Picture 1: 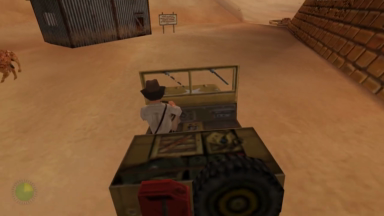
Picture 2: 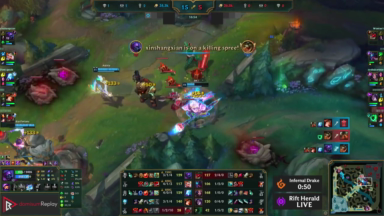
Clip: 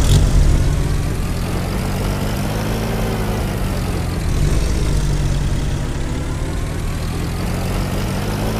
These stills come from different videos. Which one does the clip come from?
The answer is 1